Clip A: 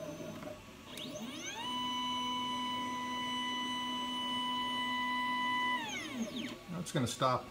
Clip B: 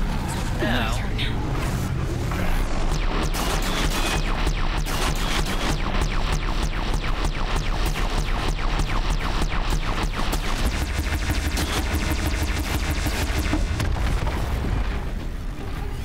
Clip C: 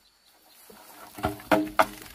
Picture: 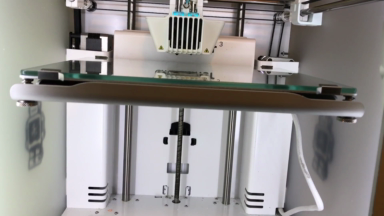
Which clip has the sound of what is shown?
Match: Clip A